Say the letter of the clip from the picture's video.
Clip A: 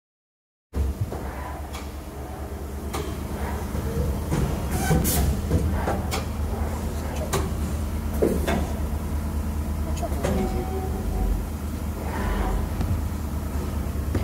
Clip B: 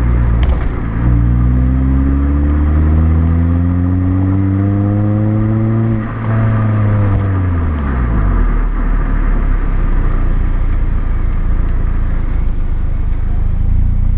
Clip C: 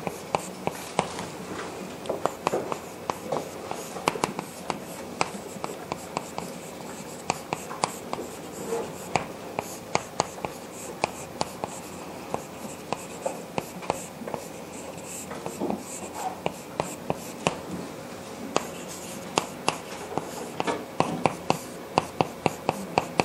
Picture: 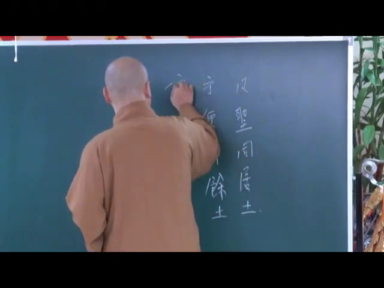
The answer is C